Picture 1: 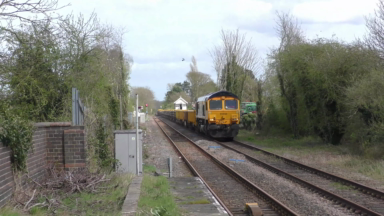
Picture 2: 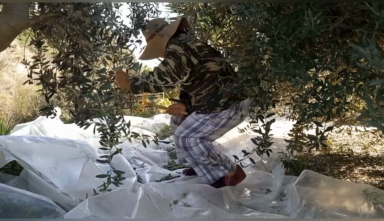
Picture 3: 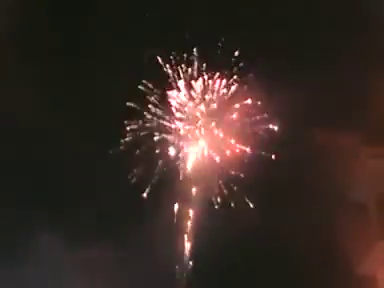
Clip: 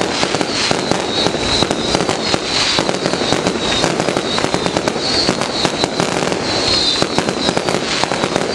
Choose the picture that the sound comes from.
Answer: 3